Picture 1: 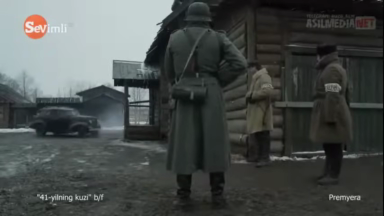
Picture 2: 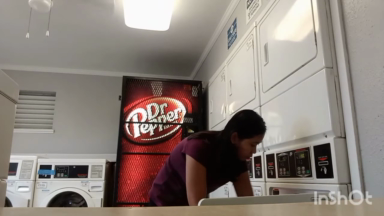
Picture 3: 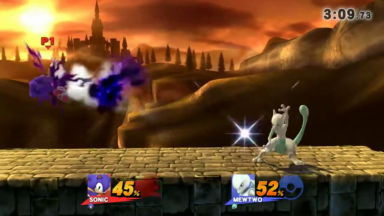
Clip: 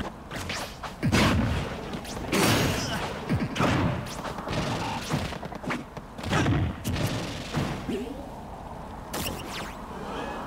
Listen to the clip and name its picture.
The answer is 3